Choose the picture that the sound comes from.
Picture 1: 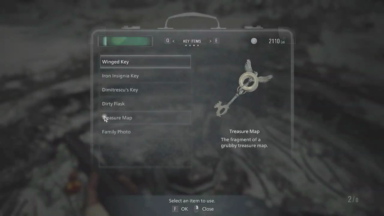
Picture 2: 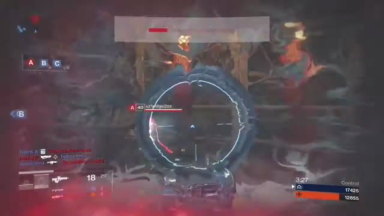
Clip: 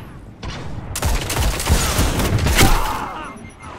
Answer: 2